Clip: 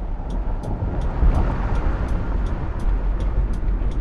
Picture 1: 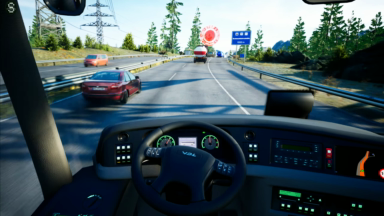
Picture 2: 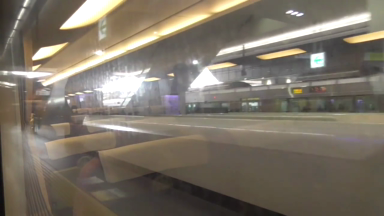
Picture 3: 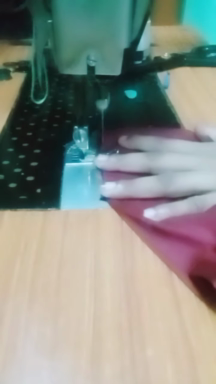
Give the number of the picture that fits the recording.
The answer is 1